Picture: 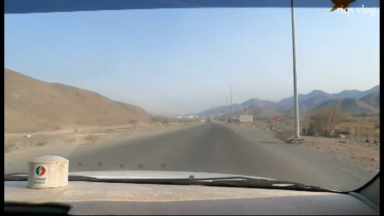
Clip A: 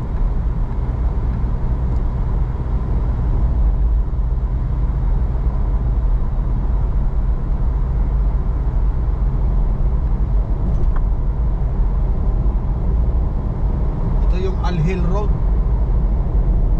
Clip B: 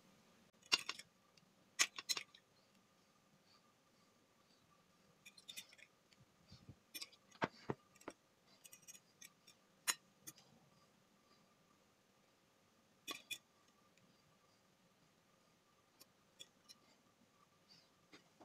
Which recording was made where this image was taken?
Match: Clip A